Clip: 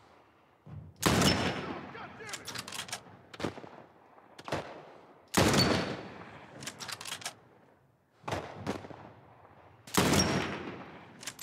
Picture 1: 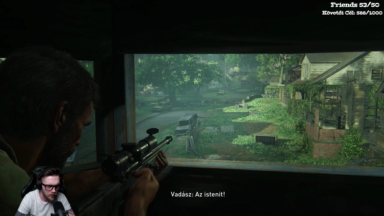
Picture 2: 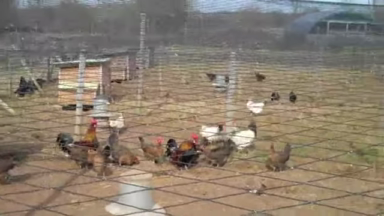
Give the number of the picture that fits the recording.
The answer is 1